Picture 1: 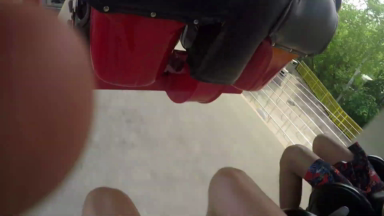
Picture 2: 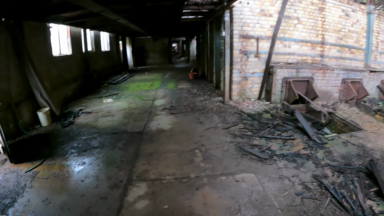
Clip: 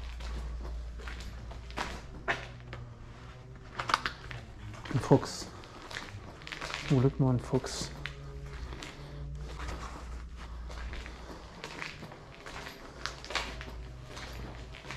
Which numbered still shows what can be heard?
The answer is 2